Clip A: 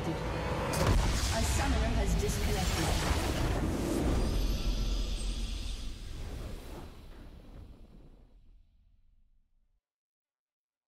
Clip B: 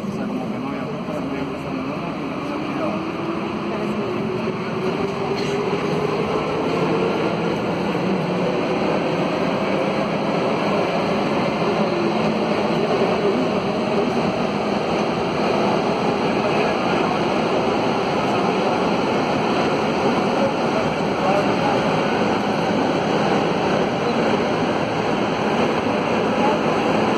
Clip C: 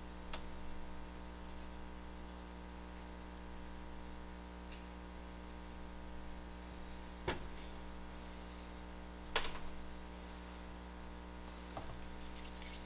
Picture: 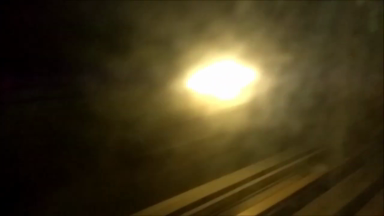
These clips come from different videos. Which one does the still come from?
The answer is B